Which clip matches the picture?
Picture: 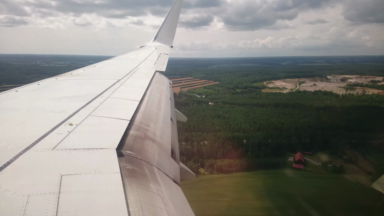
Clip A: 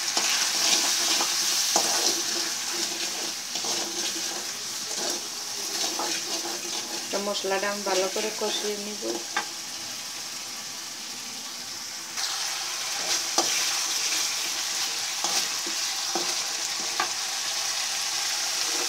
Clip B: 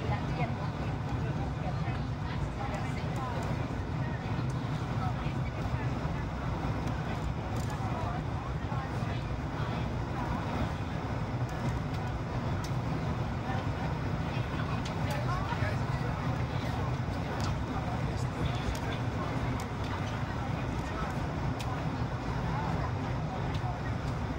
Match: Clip B